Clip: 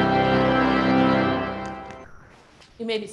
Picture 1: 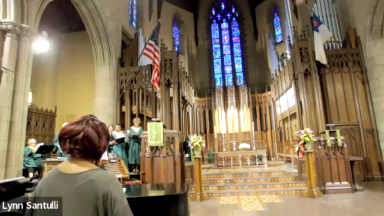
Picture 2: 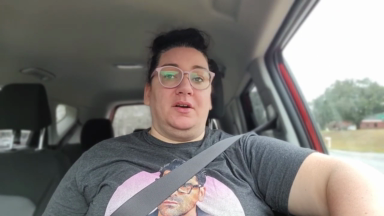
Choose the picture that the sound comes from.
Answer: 1